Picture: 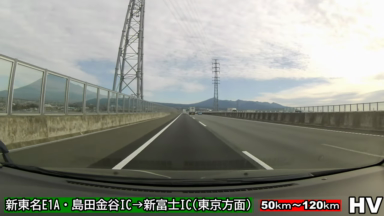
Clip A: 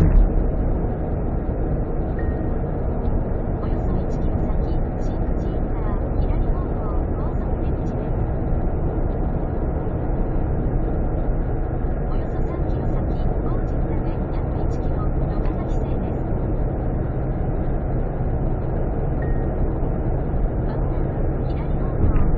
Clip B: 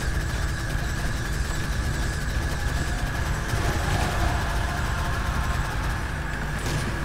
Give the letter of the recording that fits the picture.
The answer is A